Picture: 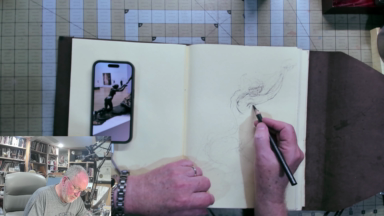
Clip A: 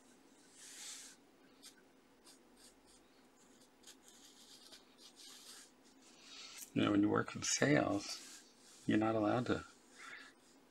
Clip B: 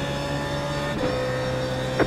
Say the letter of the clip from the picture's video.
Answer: A